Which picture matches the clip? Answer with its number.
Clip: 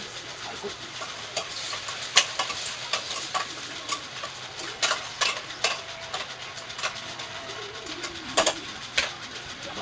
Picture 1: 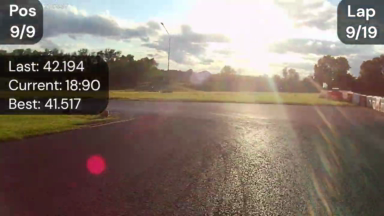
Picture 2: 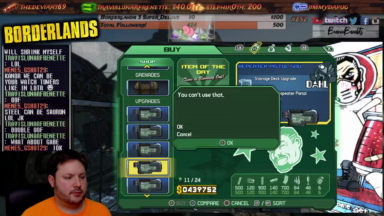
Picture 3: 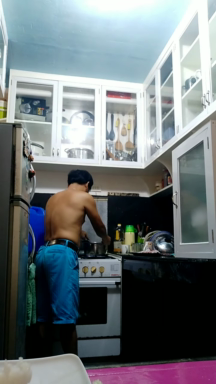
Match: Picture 3